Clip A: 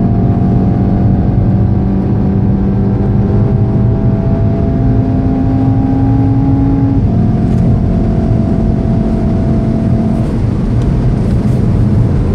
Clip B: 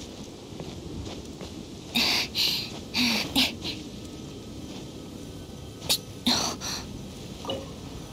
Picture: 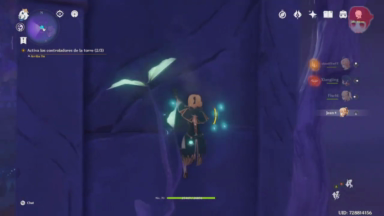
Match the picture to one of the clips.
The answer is B